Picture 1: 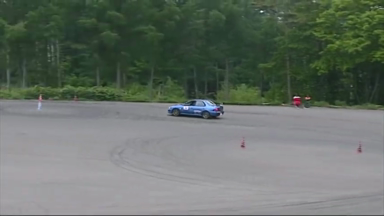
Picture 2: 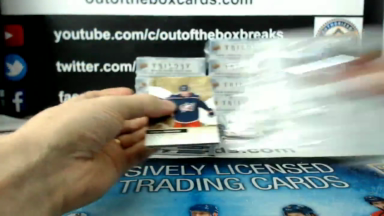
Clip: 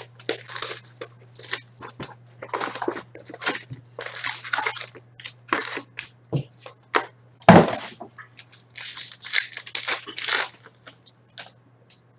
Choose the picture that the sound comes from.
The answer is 2